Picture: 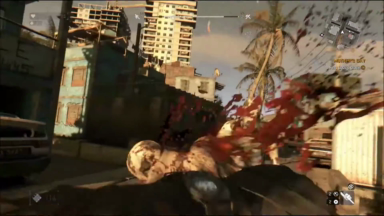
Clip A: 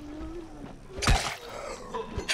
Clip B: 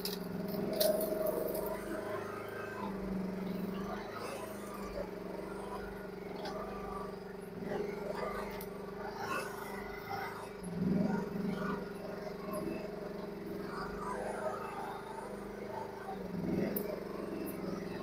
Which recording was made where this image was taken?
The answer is A